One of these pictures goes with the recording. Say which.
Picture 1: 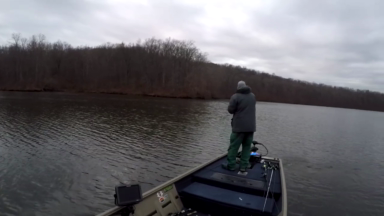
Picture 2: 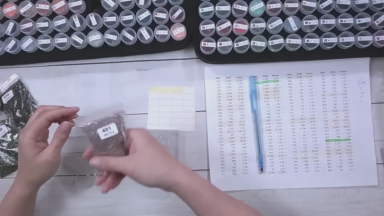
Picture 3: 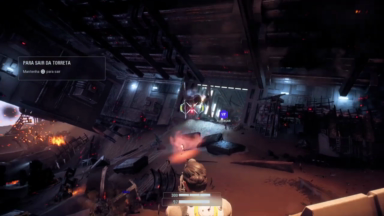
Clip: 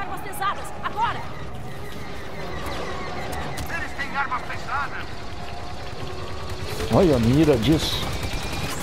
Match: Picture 3